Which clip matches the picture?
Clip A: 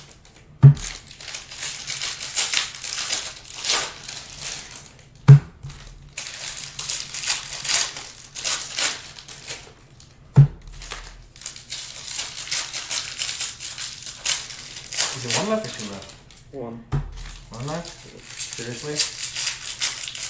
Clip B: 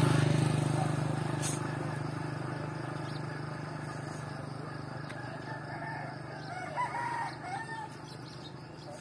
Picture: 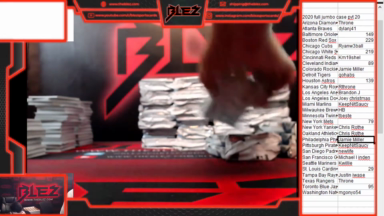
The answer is A